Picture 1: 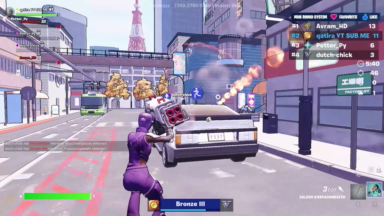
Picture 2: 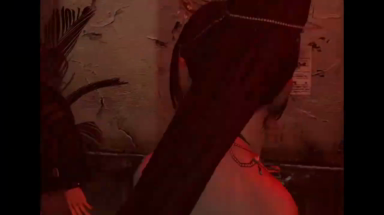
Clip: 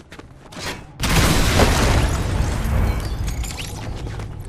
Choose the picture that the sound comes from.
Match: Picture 1